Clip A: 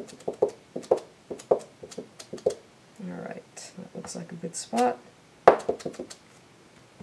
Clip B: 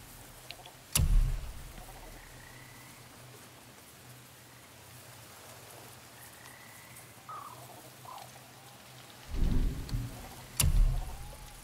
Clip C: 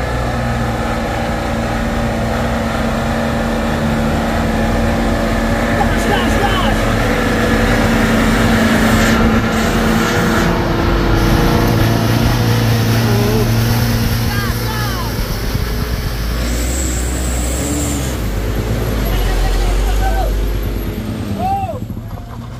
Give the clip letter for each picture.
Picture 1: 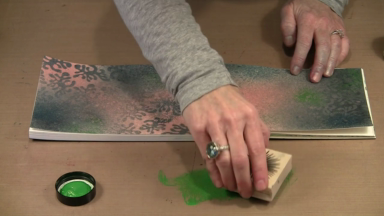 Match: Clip A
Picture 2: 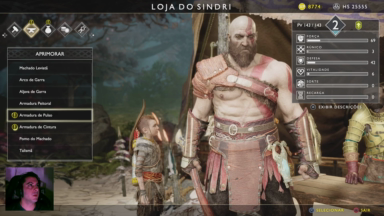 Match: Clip B